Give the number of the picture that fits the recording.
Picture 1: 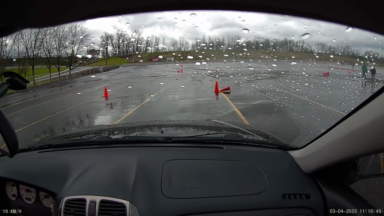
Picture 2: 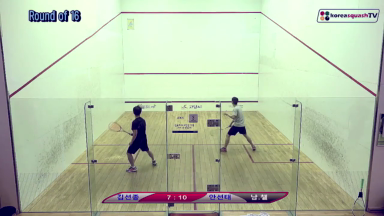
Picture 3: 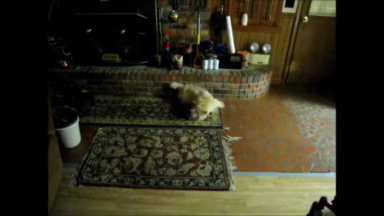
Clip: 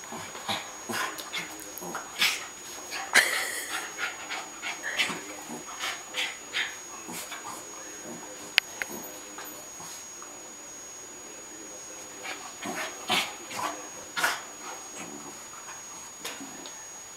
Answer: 3